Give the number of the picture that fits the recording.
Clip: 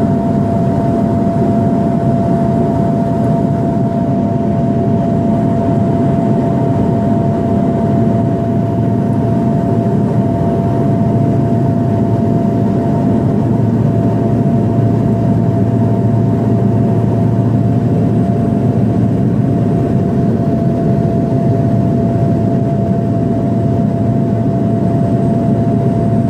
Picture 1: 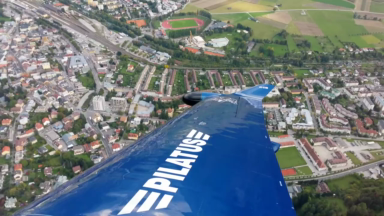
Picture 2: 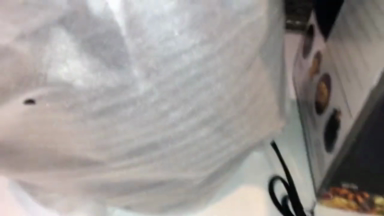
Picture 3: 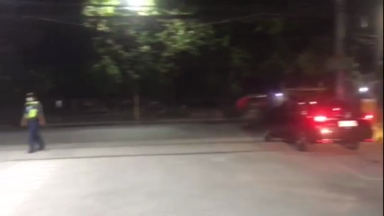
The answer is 1